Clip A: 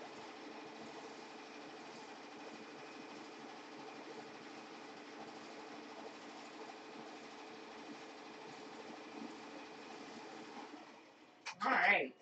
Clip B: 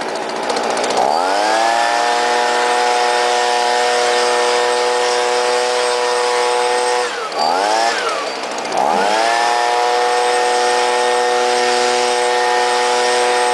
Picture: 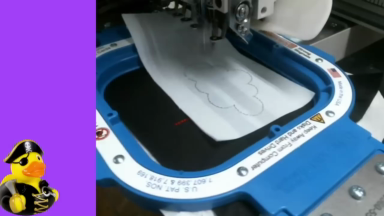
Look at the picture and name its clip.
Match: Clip A